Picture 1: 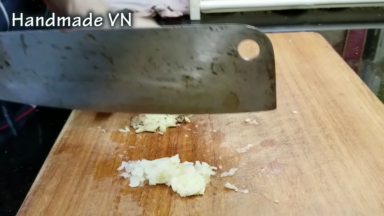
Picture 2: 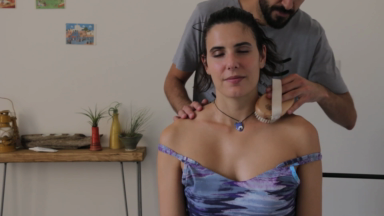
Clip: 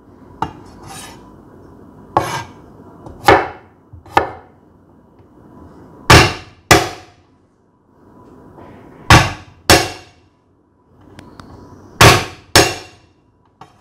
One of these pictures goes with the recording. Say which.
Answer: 1